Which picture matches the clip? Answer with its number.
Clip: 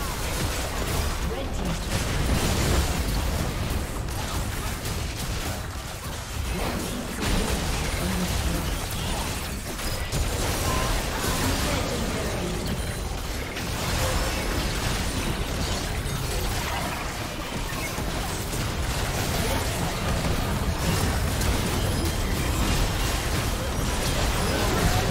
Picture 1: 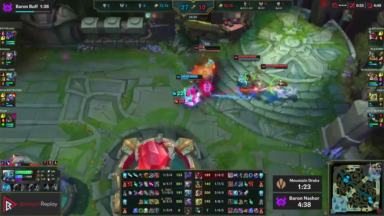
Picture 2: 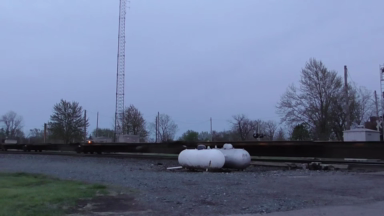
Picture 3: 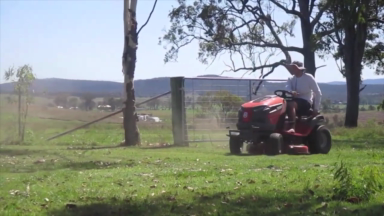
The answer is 1